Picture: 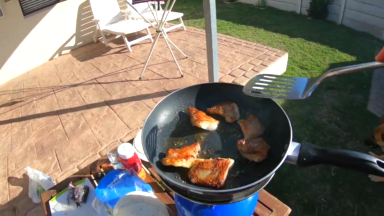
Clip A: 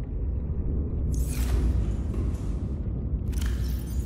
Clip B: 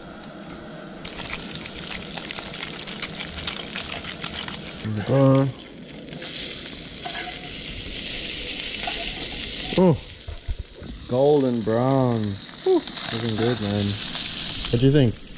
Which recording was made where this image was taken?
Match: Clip B